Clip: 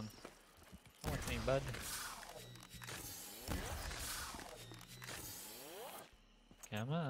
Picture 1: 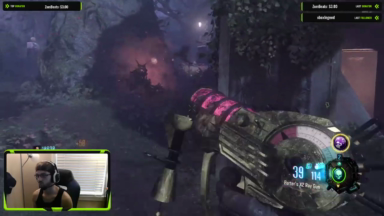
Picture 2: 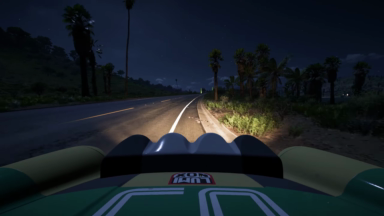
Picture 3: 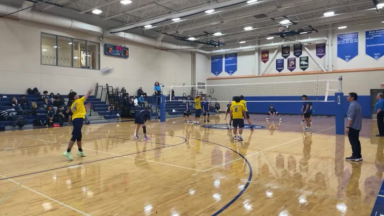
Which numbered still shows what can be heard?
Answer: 1